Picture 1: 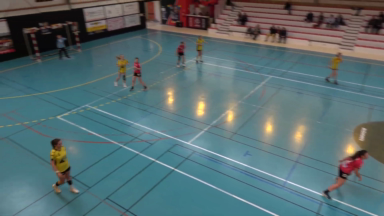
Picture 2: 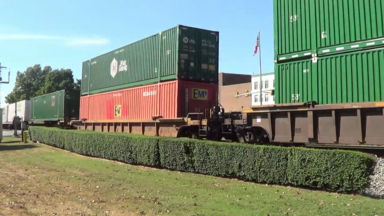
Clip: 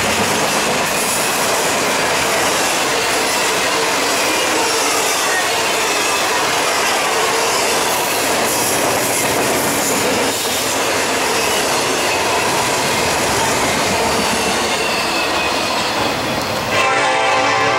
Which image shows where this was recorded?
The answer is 2